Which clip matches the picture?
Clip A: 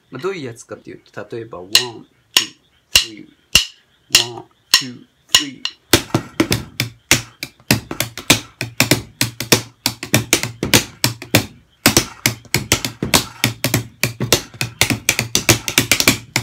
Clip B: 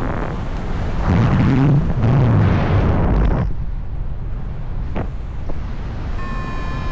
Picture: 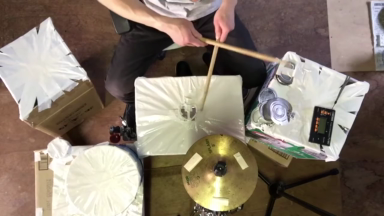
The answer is A